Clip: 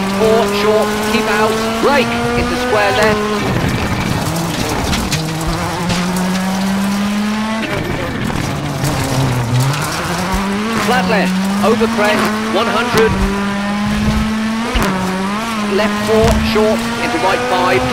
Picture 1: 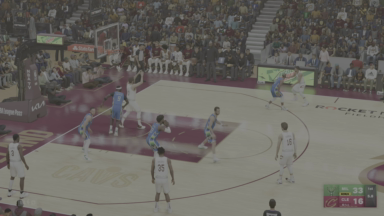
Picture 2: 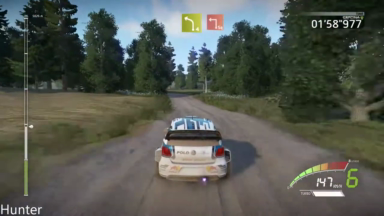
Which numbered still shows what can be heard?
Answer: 2